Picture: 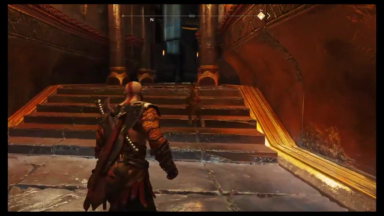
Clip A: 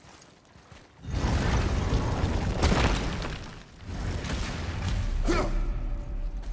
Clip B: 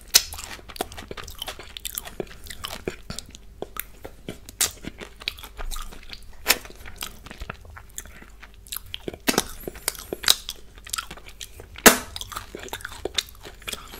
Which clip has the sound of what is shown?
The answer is A